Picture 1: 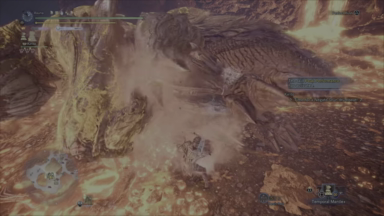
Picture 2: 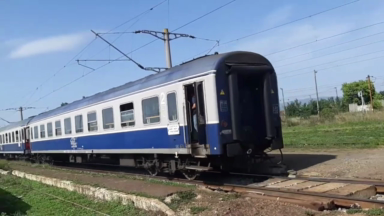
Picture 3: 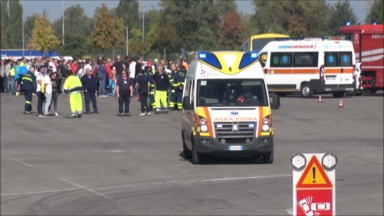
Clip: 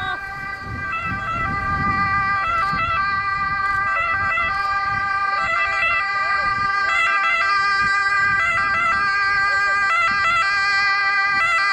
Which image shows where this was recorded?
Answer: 3